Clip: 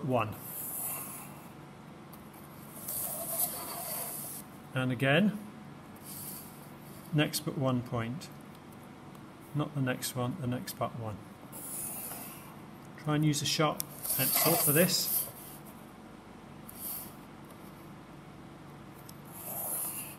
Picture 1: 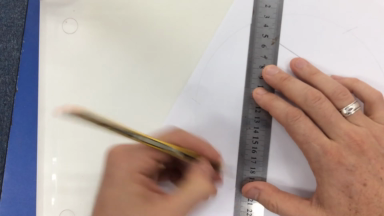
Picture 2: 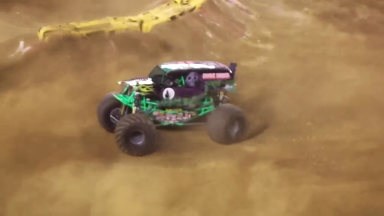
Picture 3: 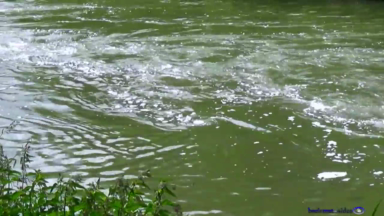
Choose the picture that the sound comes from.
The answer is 1